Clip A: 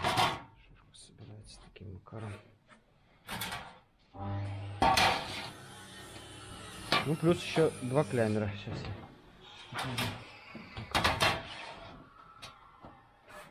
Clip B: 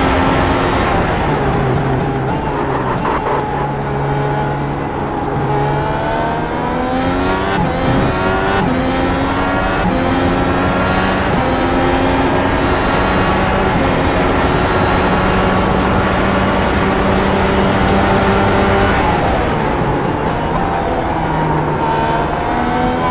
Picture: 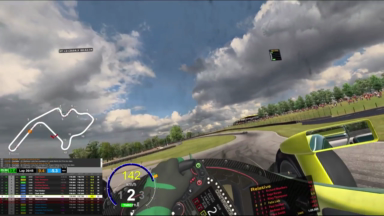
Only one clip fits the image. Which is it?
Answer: B